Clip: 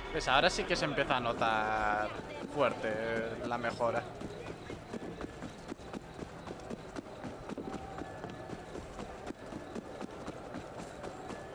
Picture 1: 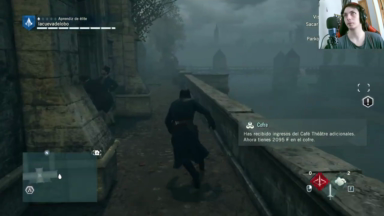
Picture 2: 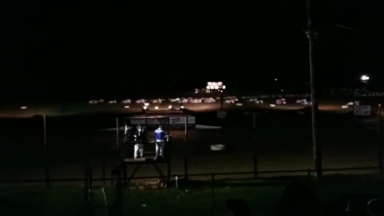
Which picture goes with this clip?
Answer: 1